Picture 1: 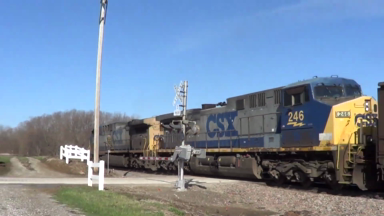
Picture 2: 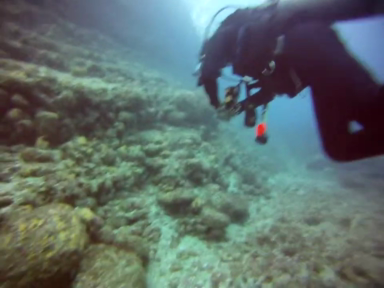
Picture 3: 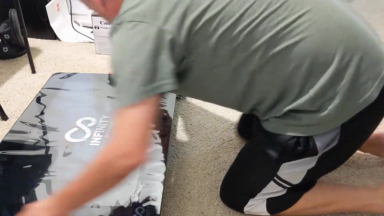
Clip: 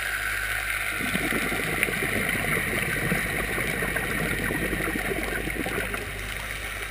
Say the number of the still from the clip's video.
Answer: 2